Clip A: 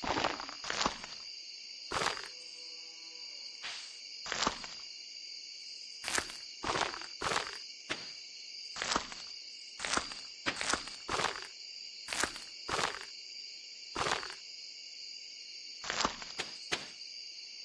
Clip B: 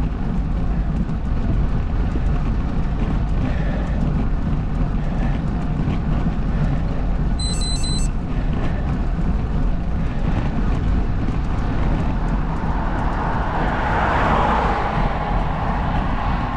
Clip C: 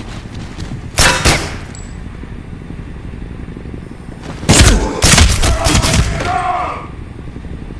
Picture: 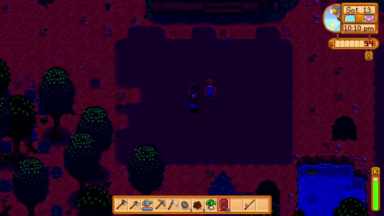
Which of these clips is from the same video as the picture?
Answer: A